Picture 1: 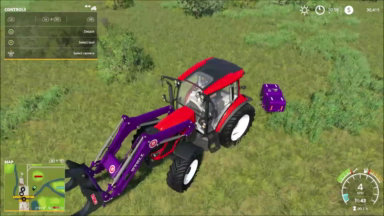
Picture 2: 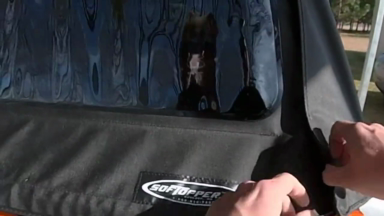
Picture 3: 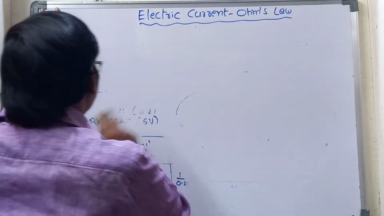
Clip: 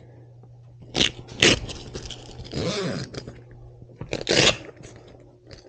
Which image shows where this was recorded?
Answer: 2